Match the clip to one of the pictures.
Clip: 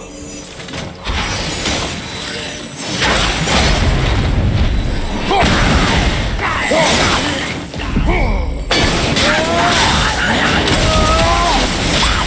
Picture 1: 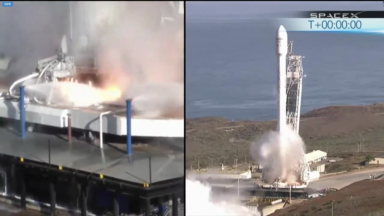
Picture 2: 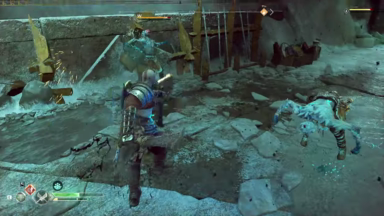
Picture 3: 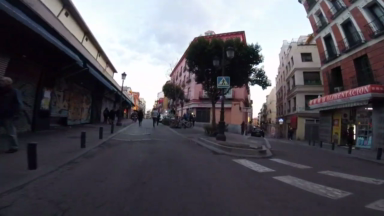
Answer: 2